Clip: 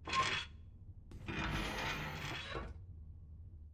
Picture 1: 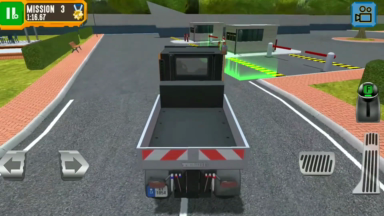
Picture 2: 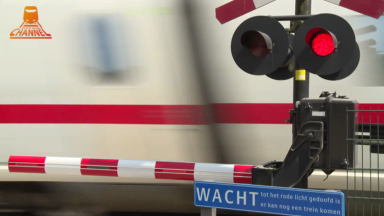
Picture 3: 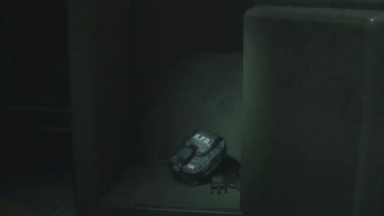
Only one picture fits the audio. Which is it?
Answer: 3